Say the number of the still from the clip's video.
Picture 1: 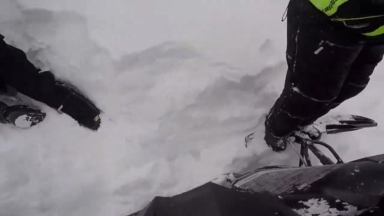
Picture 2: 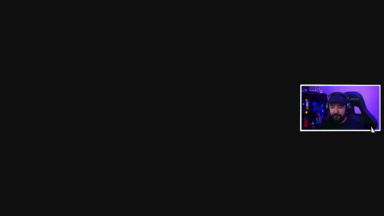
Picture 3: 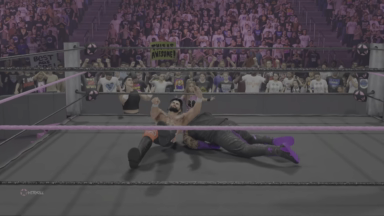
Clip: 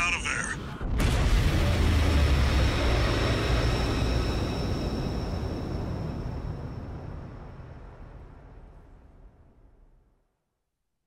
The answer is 2